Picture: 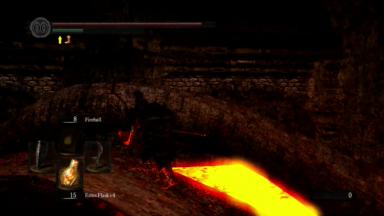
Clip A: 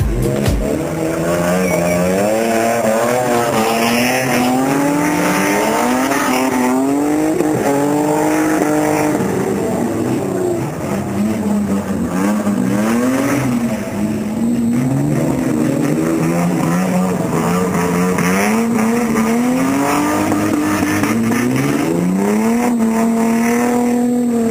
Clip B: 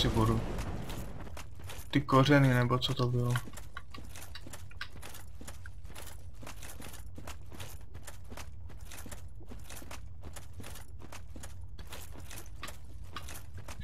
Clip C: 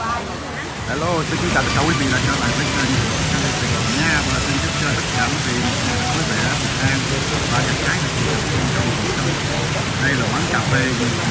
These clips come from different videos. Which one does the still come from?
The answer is B